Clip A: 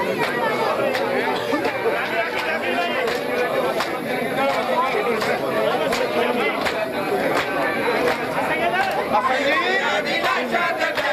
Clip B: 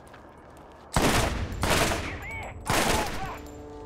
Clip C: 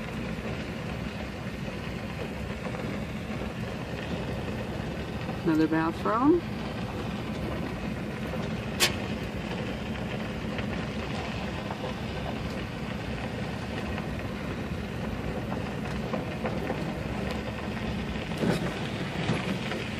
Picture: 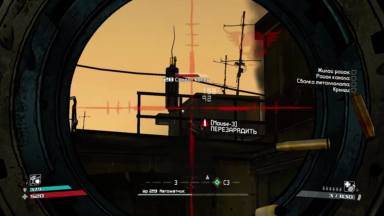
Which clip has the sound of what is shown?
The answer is B